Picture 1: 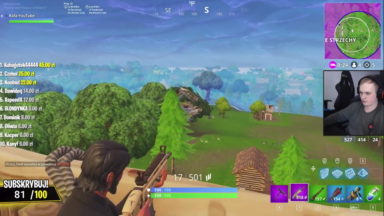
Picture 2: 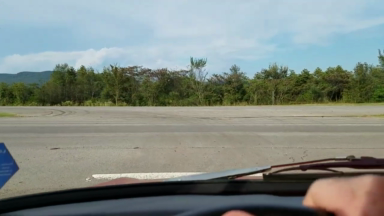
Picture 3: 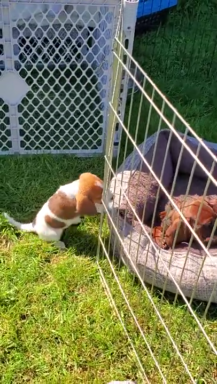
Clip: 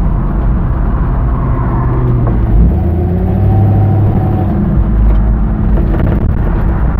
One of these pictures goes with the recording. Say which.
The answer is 2